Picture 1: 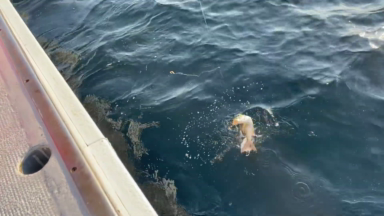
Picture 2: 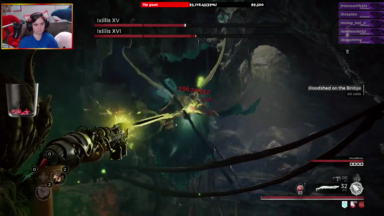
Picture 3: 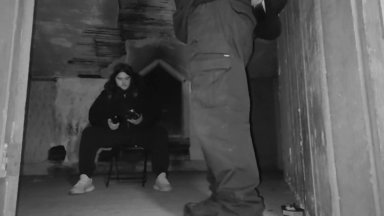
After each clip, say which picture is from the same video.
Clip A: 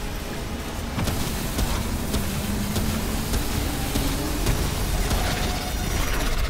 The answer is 2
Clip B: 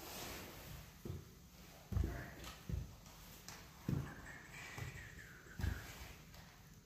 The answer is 3